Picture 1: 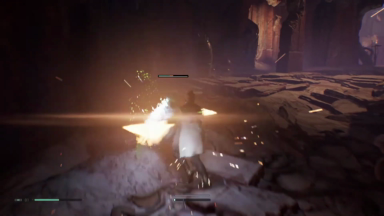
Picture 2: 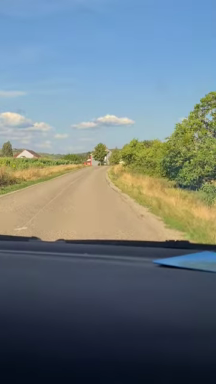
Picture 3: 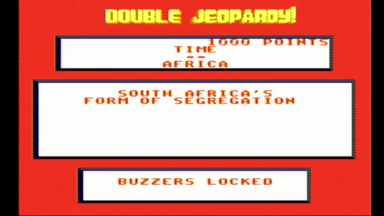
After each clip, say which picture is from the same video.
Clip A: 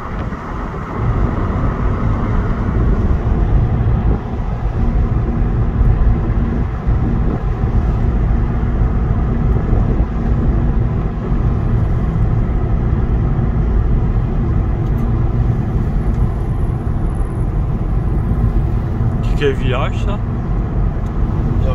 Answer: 2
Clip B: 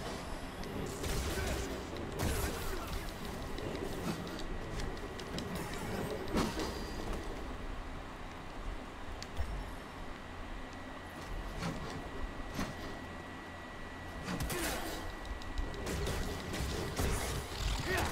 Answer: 1